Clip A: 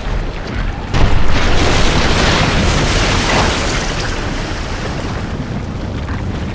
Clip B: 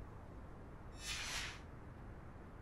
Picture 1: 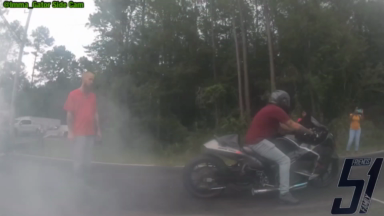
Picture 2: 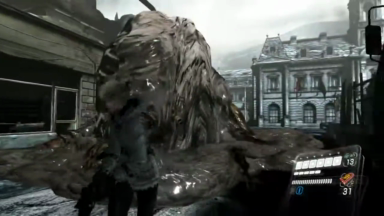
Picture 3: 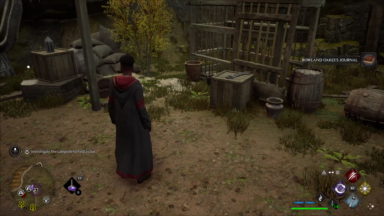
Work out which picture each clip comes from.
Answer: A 2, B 3